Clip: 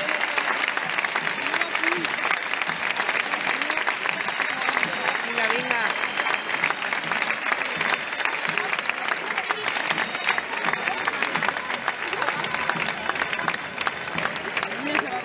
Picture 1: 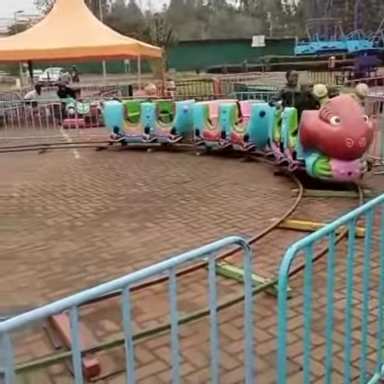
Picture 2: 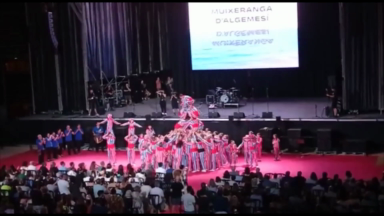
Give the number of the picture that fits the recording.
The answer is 2